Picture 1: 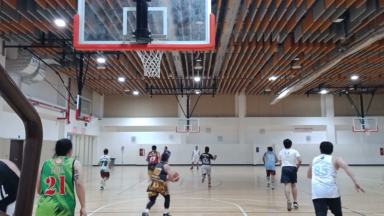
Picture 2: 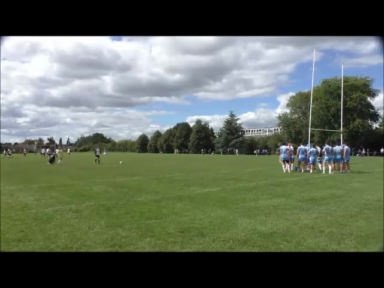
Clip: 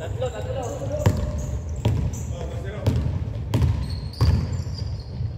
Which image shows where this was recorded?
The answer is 1